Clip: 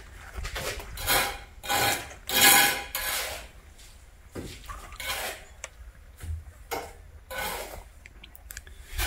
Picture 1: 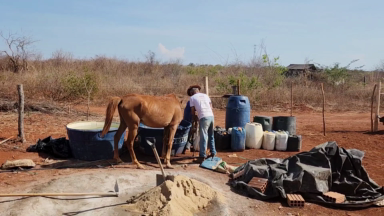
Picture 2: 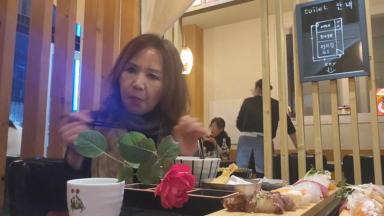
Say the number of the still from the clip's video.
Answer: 1